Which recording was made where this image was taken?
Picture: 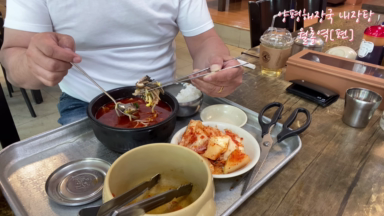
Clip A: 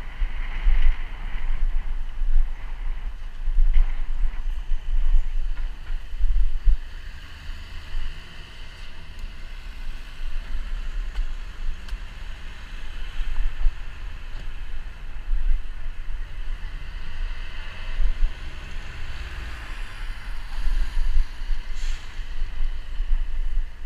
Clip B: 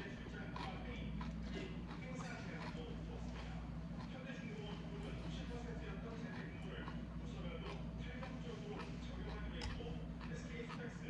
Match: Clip B